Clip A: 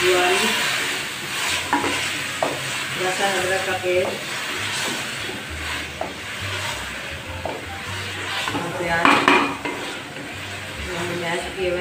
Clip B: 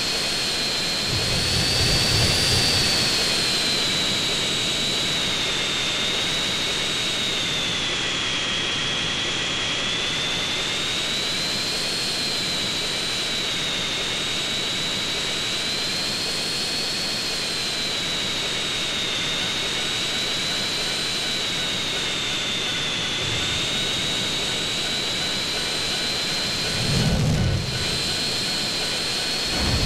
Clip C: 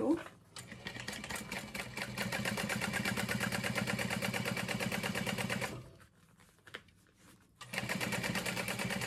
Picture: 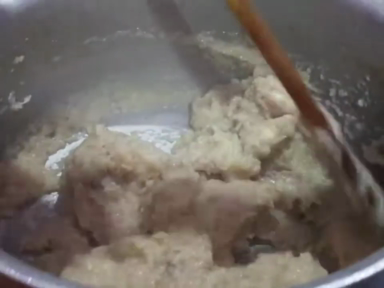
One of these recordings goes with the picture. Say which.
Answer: A